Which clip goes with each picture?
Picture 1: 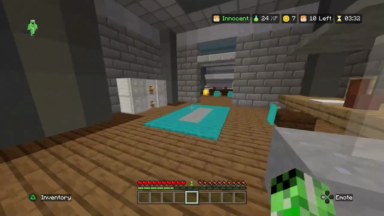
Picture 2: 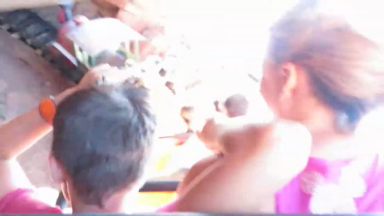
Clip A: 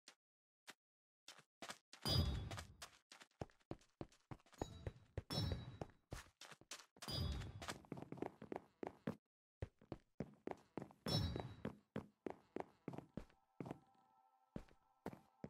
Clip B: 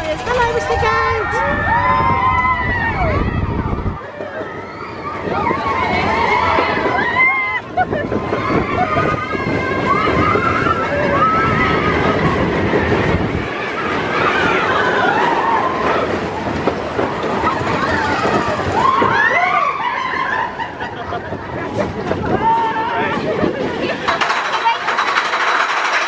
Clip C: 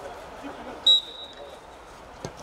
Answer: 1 A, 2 B